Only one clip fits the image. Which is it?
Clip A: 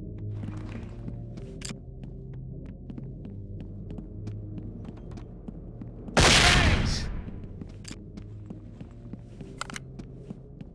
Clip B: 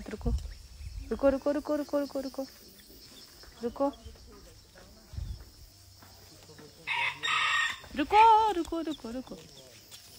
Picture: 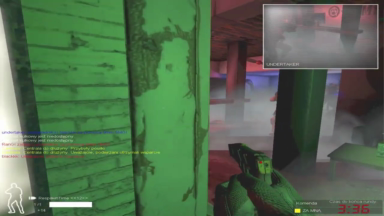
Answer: A